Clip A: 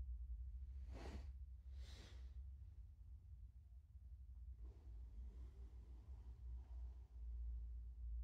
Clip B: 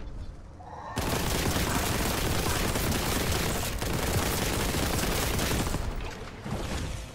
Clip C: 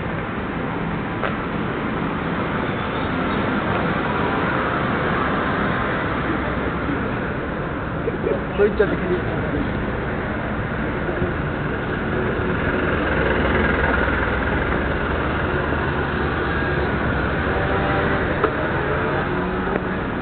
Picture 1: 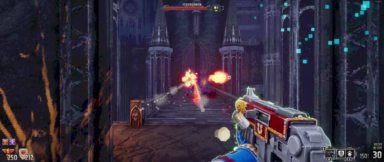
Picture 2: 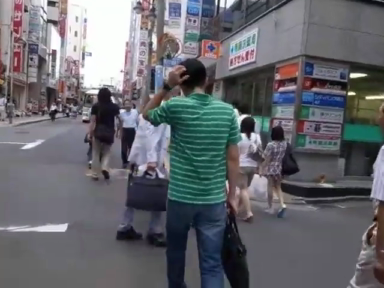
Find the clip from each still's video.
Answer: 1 B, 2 C